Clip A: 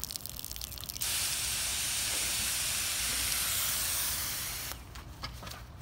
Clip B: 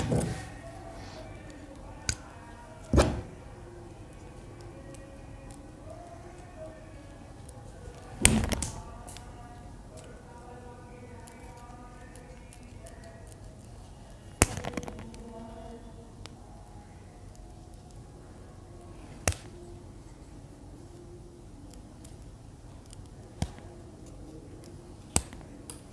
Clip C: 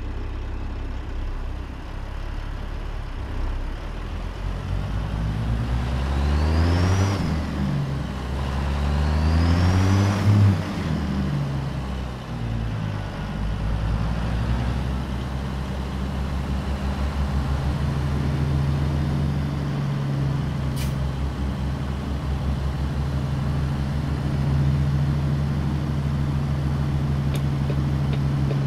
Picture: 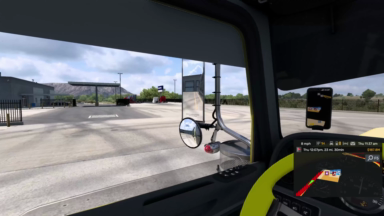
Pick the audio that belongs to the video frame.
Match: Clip C